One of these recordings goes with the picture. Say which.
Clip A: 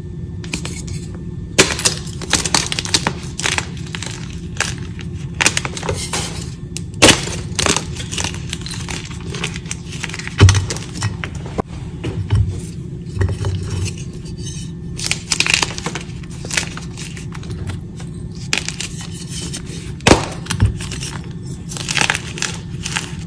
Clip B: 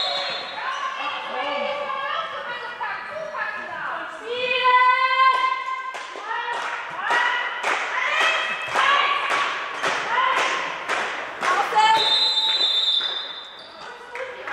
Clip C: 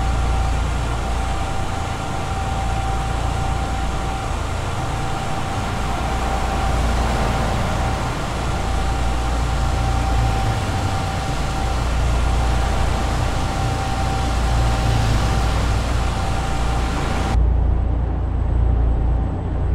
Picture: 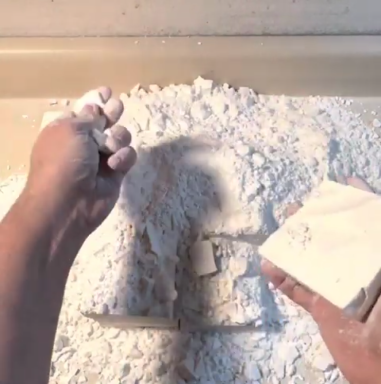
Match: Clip A